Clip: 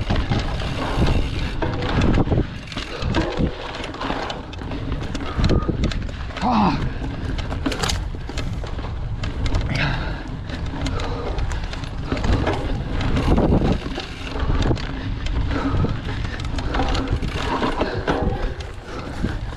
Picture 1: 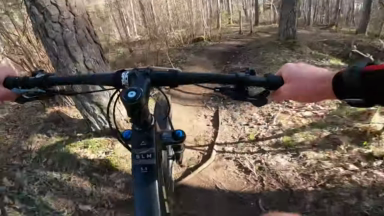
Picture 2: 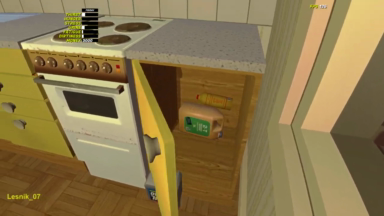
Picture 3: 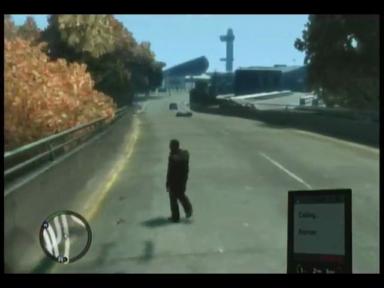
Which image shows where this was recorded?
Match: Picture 1